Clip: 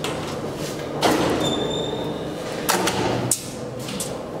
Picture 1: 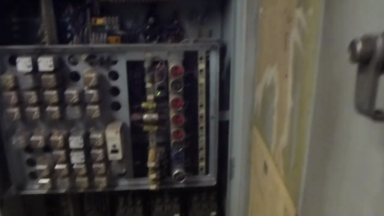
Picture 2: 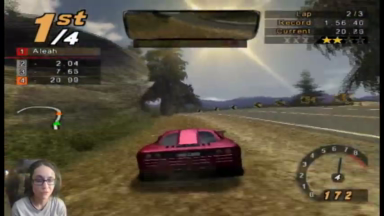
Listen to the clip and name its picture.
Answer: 1